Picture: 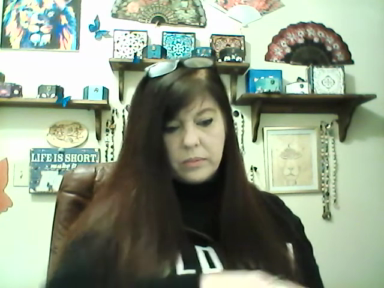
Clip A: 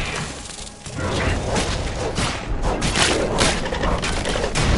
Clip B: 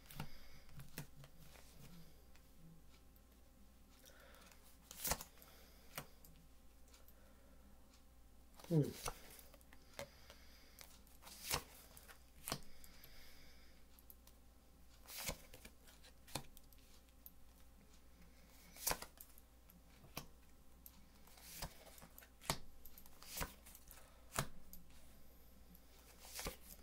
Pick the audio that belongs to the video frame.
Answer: B